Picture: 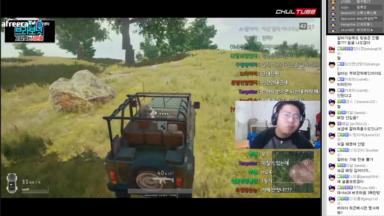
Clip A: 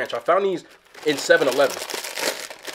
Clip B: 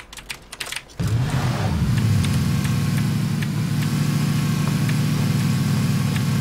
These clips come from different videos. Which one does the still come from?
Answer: B